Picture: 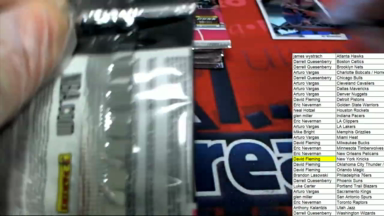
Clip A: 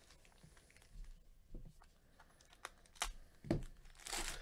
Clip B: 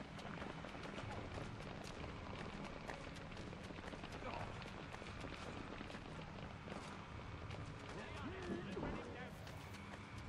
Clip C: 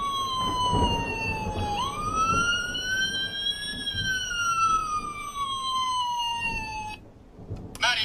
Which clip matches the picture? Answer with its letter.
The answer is A